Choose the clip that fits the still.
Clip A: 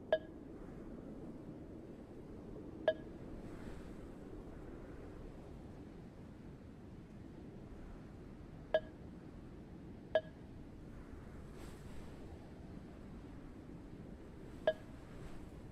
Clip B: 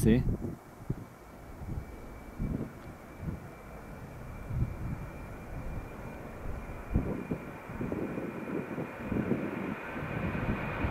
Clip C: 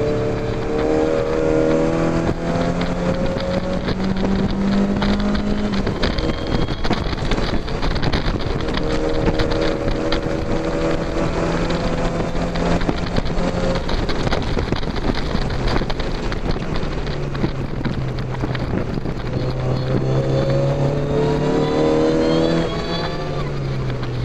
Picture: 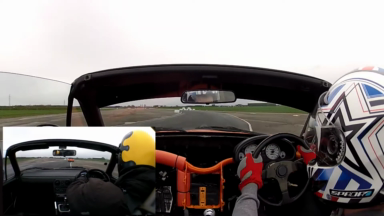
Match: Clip C